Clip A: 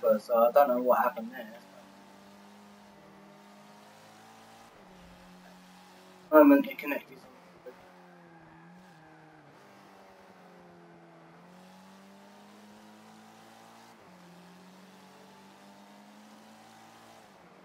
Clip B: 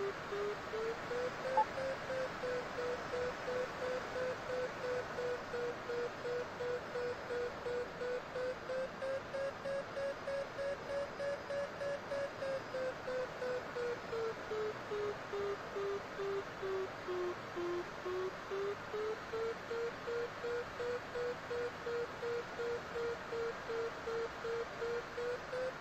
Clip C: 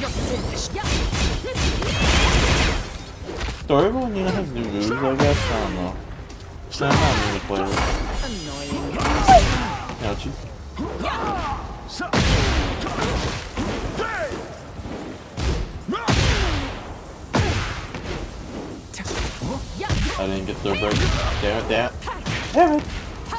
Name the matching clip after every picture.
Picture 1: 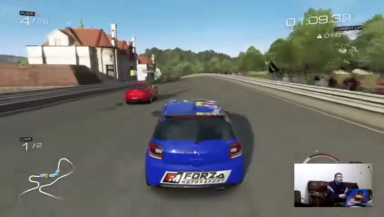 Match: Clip A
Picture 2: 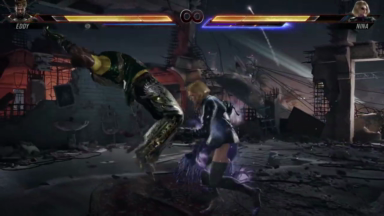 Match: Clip C